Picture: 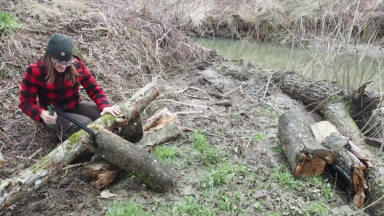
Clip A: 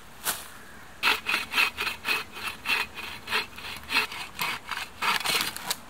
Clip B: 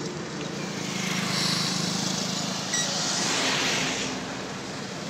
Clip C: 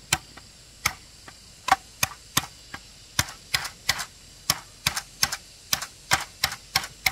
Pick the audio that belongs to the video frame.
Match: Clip A